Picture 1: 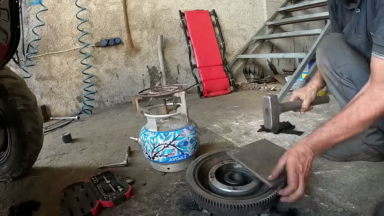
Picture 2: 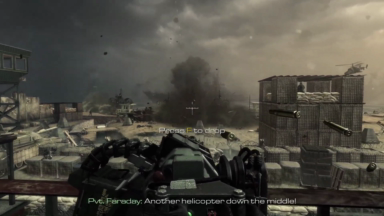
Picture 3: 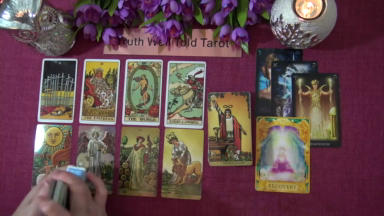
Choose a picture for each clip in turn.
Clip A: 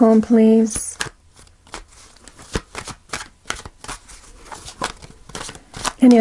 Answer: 3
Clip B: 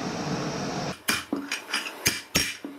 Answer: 1